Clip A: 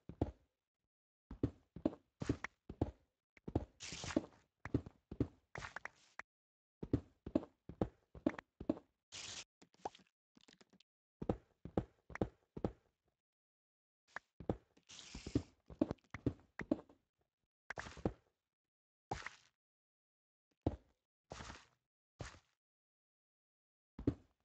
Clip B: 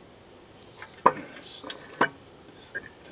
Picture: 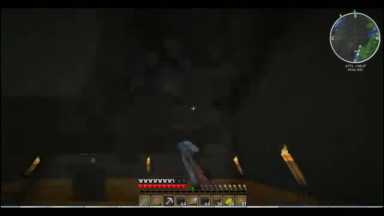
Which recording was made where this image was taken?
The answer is A